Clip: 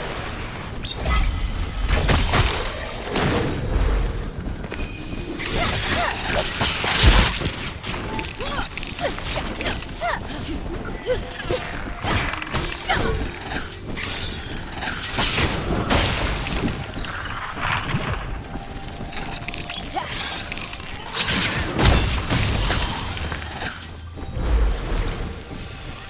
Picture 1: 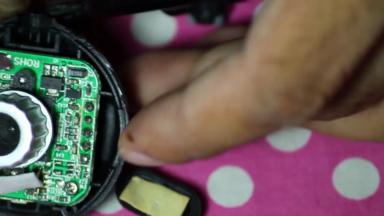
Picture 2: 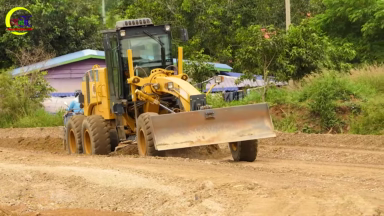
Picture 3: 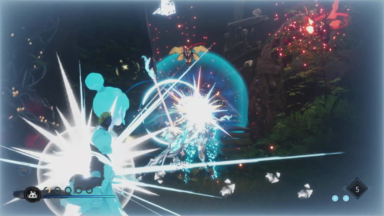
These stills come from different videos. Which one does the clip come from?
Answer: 3